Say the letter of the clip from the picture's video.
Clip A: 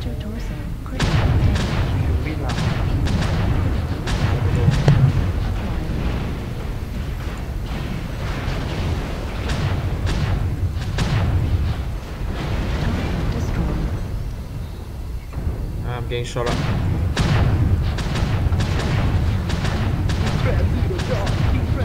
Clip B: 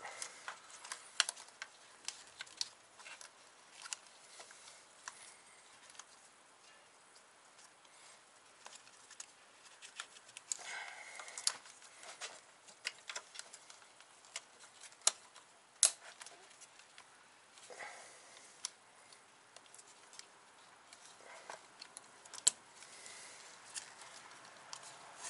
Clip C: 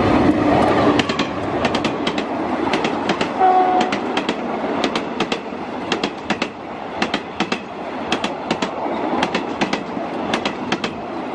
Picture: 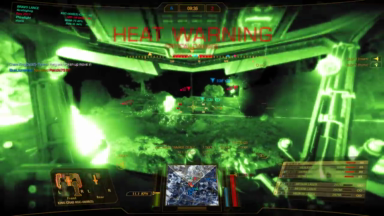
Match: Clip A